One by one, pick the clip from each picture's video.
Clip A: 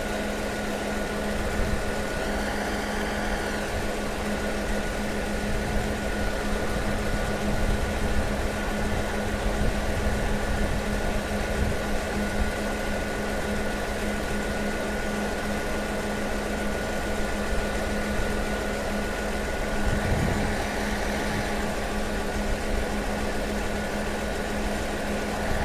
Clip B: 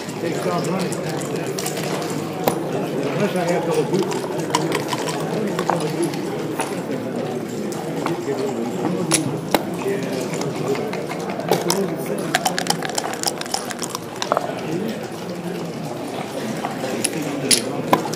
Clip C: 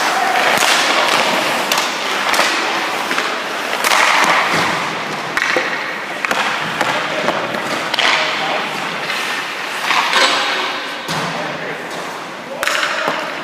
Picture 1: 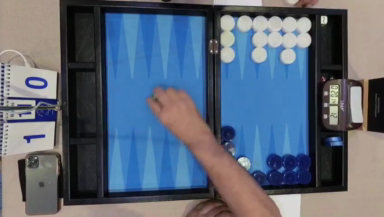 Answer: B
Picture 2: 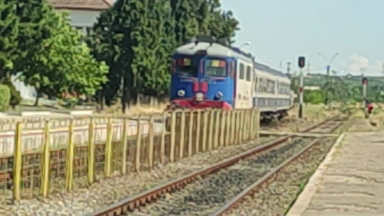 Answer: A